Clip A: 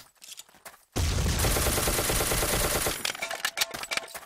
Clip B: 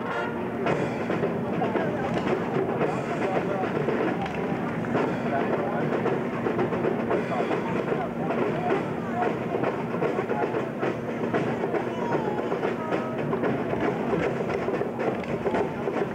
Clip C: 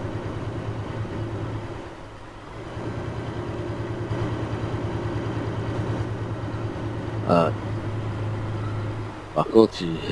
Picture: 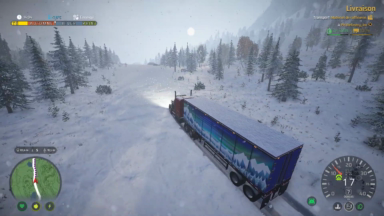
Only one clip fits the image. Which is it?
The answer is C